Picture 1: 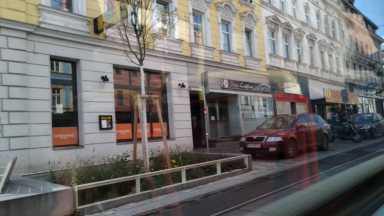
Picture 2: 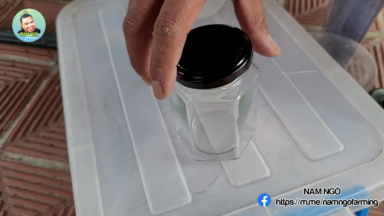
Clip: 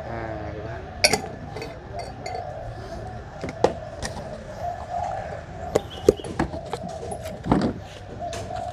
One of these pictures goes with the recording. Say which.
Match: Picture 2